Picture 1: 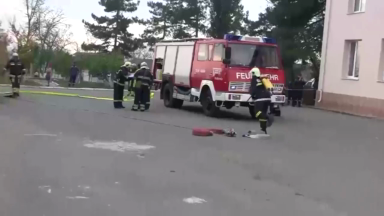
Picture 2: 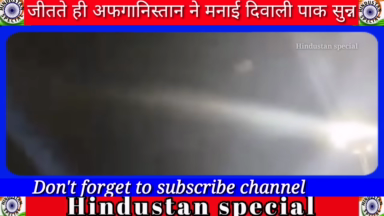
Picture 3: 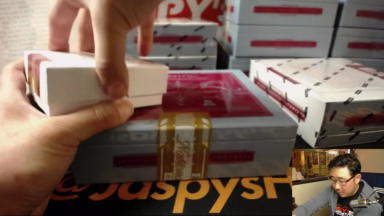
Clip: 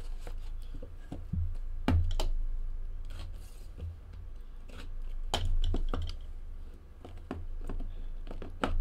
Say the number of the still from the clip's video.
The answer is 3